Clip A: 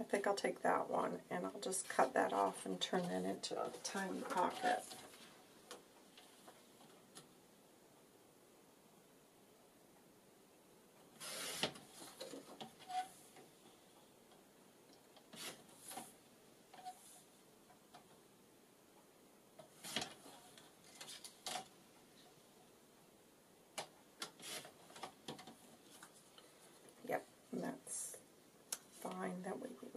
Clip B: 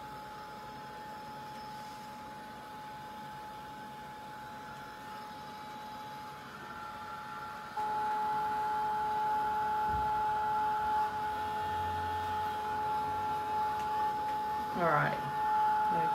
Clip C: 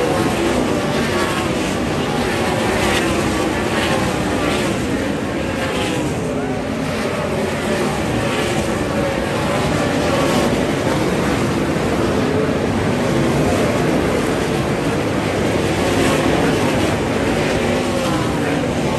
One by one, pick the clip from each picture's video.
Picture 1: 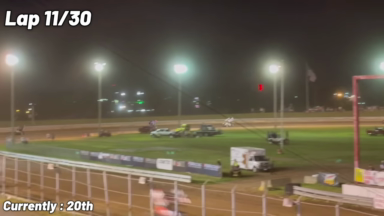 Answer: C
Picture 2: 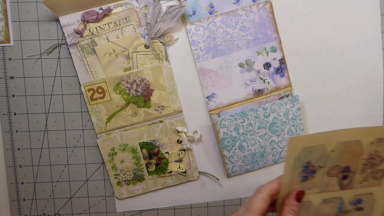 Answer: A